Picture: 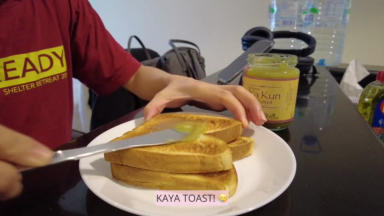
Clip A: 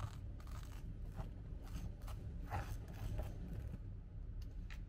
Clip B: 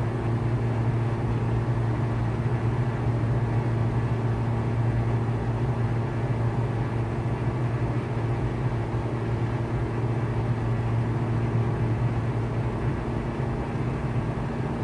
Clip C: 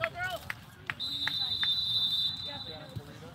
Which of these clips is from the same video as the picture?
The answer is A